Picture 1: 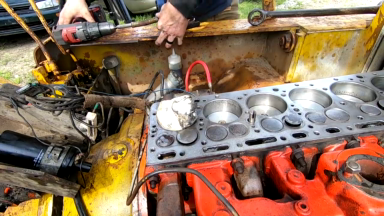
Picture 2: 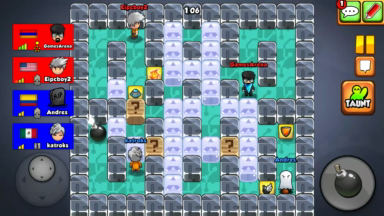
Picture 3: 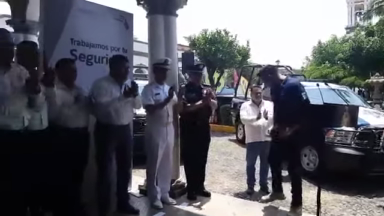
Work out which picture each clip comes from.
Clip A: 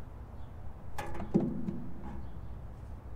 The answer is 1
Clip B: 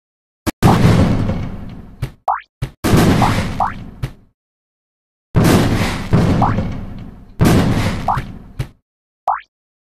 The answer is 2